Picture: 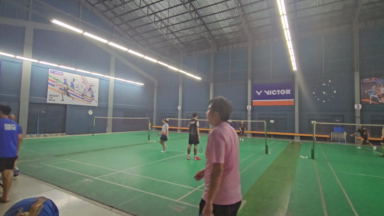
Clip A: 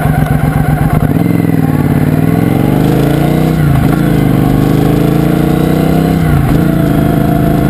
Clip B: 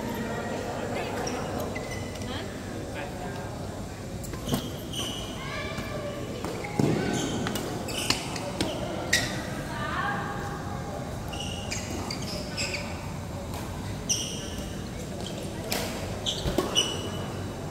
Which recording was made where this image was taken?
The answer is B